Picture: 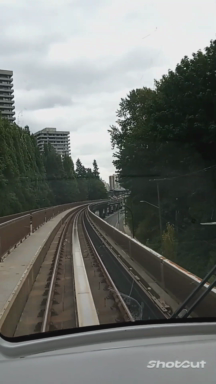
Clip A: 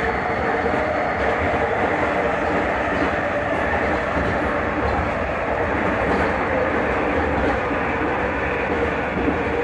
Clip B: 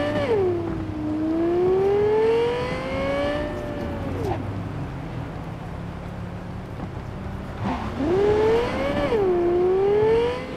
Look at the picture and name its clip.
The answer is A